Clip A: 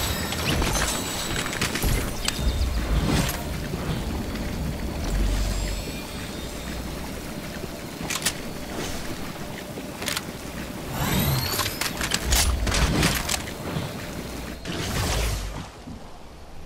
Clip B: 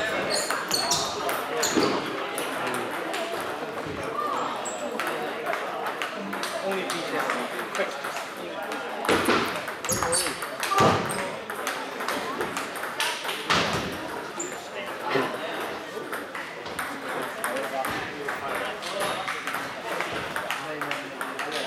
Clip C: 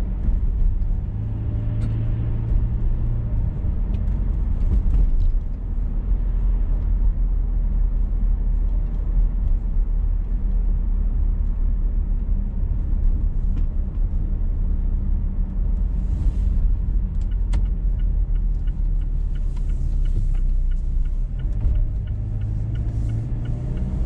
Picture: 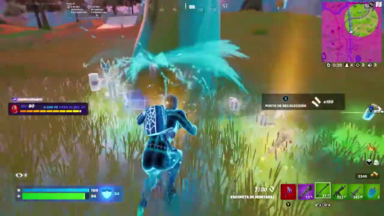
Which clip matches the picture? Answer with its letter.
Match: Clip A